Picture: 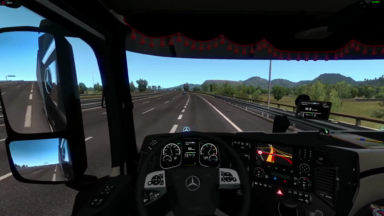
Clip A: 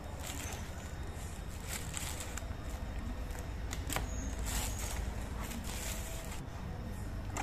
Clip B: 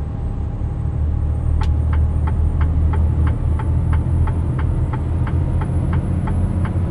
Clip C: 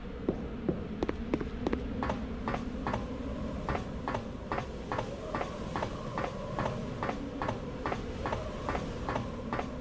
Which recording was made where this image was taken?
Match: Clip B